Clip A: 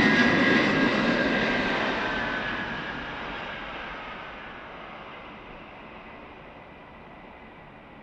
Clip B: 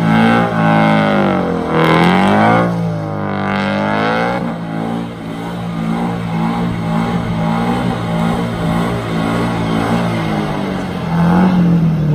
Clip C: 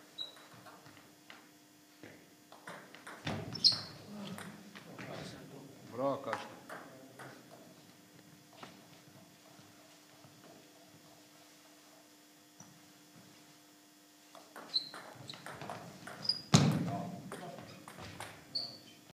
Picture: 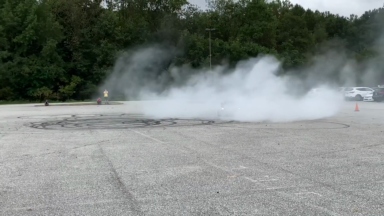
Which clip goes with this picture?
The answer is B